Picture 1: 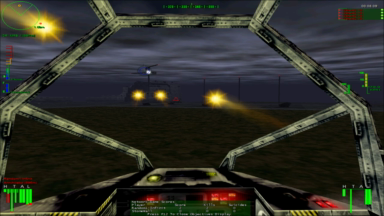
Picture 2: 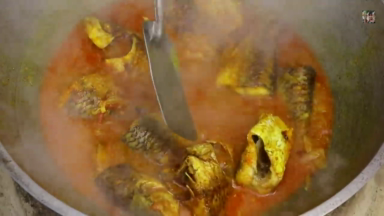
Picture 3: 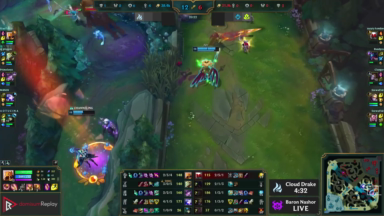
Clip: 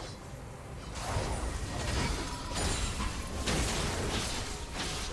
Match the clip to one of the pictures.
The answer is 3